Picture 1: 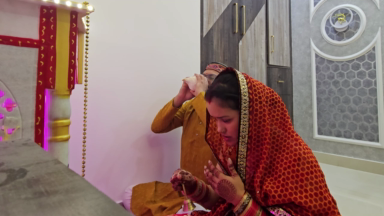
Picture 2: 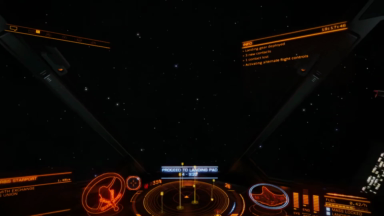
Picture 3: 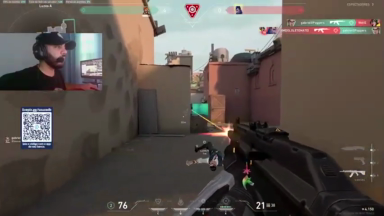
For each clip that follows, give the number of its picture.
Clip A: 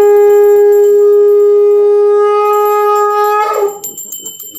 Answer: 1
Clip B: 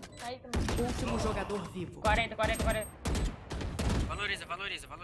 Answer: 3